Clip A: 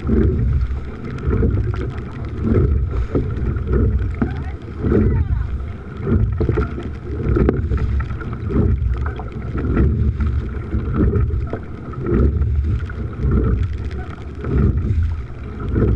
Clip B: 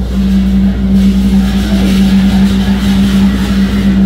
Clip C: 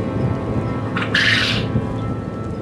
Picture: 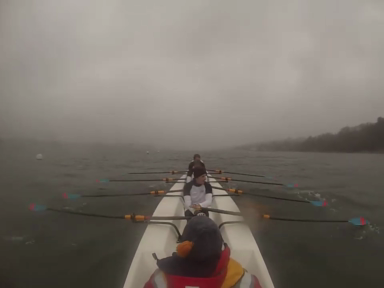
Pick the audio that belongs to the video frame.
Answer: A